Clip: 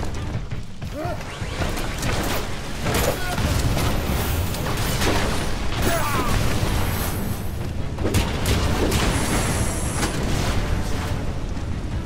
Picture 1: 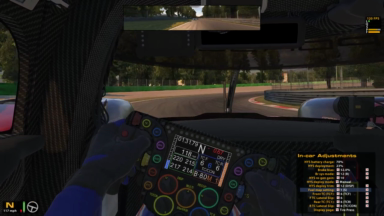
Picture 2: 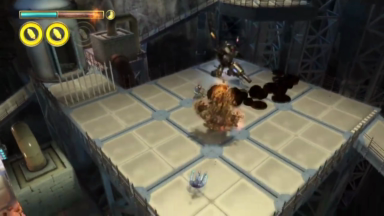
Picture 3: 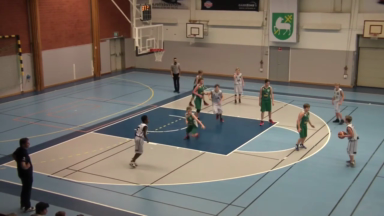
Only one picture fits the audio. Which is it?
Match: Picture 2